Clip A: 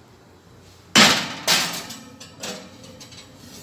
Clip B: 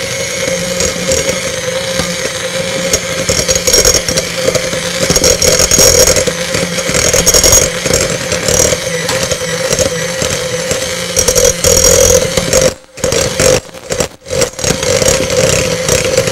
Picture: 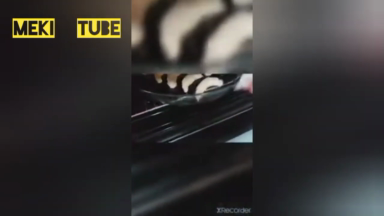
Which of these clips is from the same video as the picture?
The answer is A